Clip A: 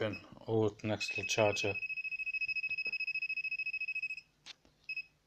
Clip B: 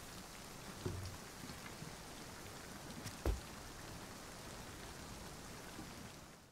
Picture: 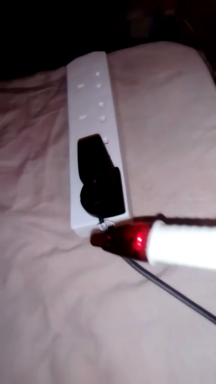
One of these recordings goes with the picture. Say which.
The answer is A